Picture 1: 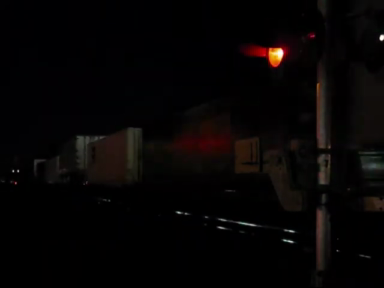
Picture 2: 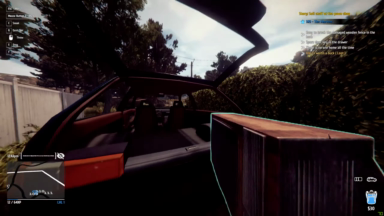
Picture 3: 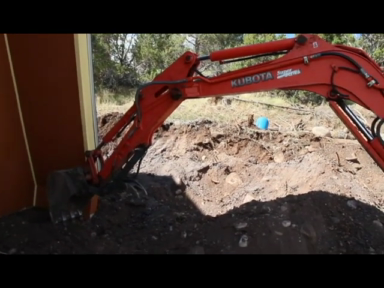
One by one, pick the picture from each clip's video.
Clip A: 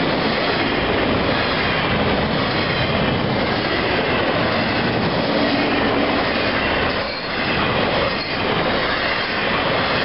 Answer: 1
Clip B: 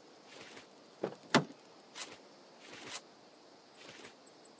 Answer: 2